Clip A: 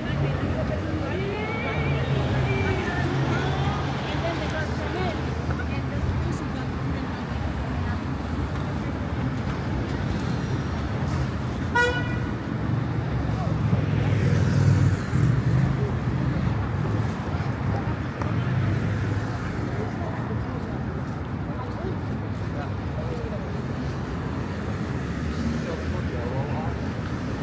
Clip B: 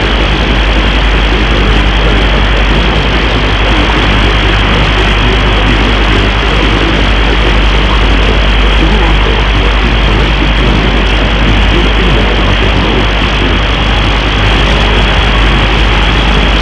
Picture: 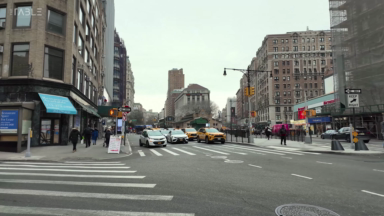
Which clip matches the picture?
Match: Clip A